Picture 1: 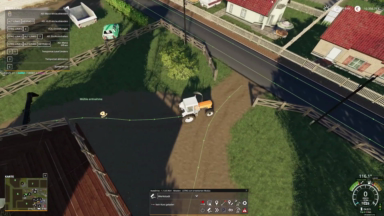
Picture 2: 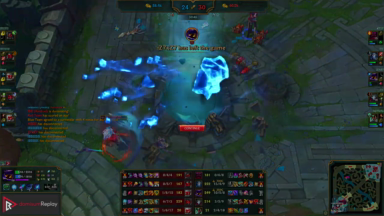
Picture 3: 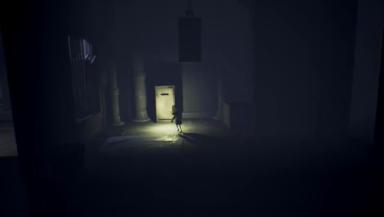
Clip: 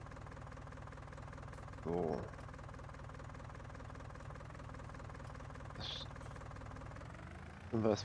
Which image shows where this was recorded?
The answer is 1